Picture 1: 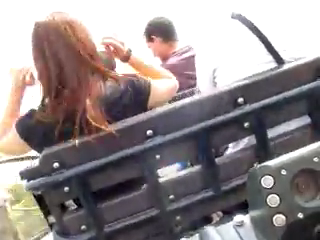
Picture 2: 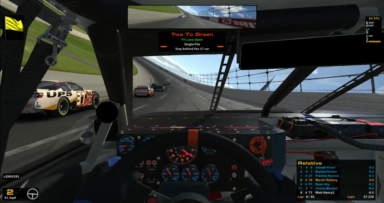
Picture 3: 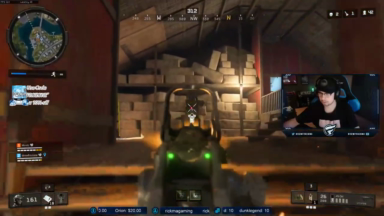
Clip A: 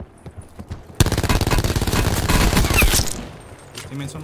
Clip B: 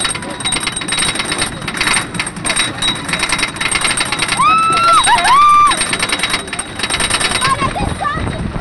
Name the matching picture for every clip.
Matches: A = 3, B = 1